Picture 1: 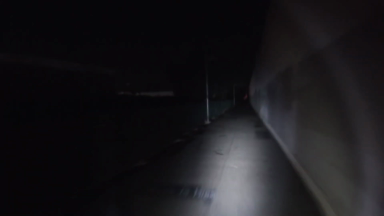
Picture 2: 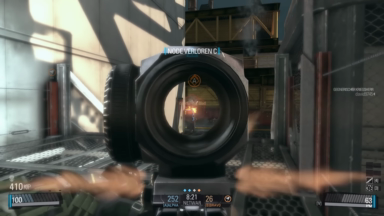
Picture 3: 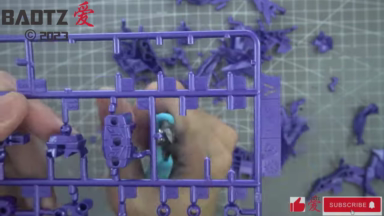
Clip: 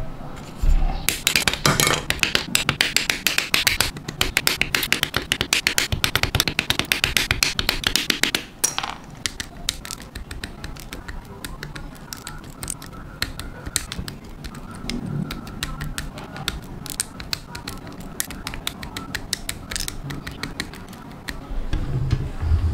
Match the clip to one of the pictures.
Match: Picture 3